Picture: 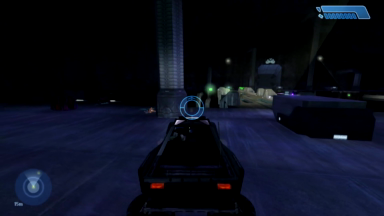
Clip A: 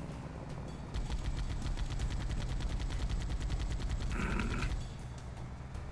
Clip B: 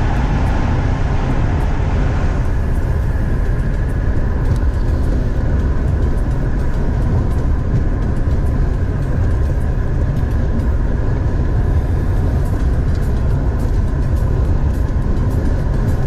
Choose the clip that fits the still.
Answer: A